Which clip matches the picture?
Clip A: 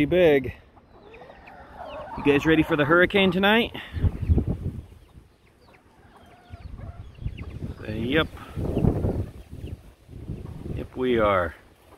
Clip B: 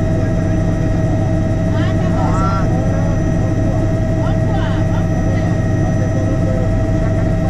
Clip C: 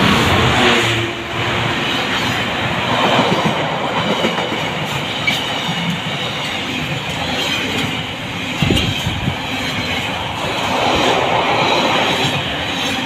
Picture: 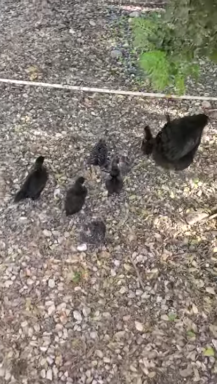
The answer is A